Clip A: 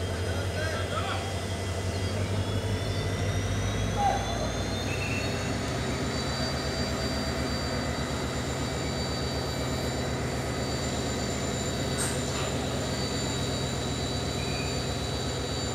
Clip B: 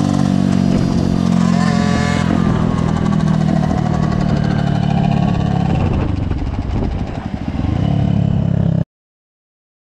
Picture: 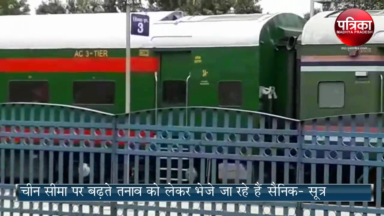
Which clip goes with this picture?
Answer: A